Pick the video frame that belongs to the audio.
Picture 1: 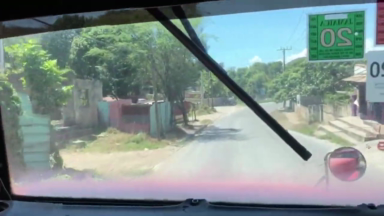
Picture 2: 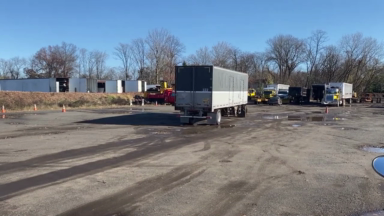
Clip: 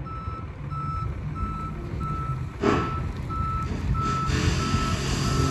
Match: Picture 2